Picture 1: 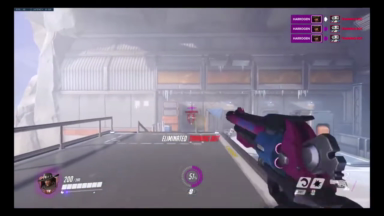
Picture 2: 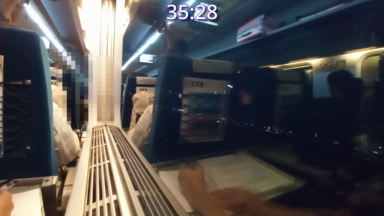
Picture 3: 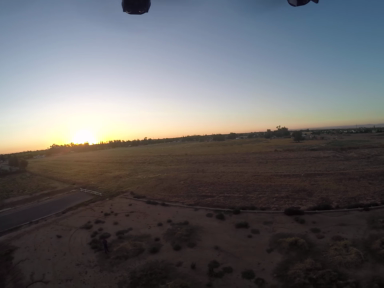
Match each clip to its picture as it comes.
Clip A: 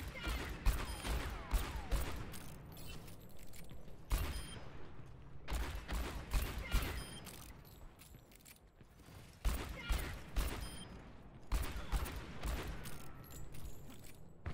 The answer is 1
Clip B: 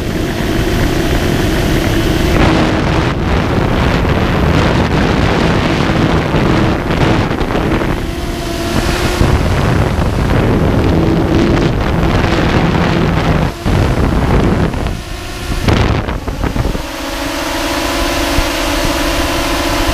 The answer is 3